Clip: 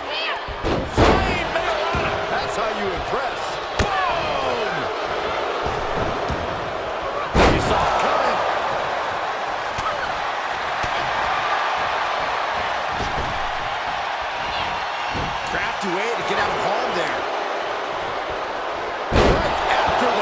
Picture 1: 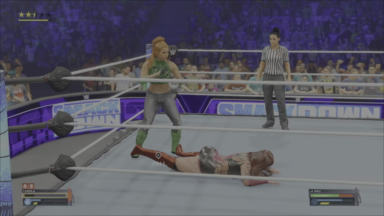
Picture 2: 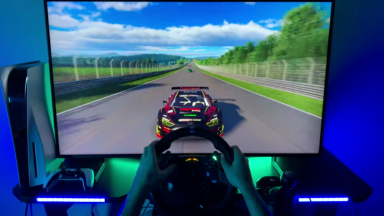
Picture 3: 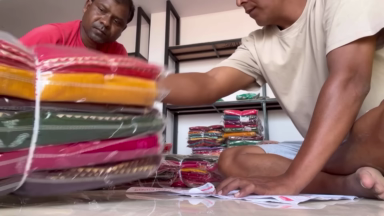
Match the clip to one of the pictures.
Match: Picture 1